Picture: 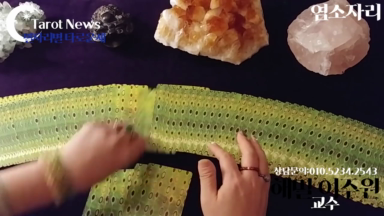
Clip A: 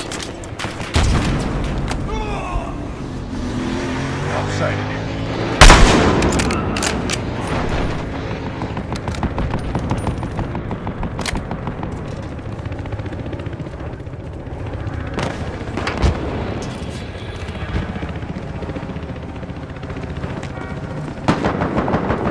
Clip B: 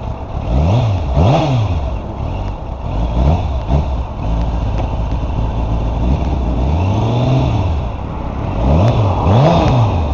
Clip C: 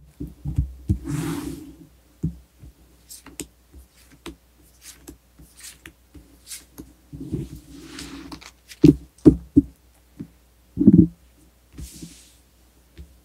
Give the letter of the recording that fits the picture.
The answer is C